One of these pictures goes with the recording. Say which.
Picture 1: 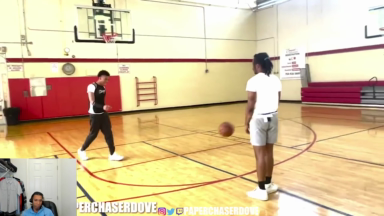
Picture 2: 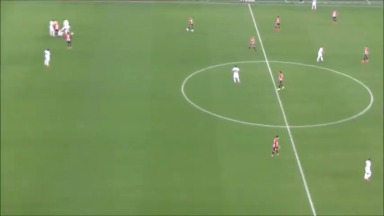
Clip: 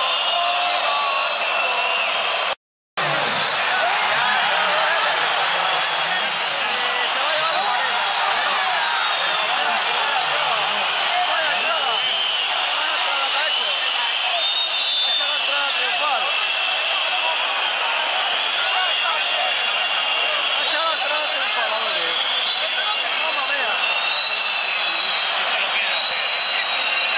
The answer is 2